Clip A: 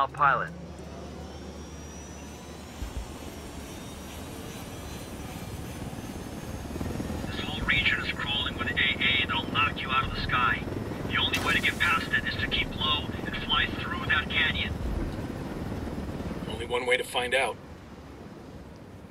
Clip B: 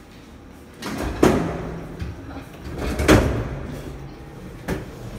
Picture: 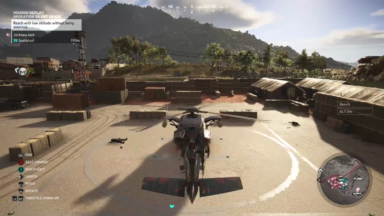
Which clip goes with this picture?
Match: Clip A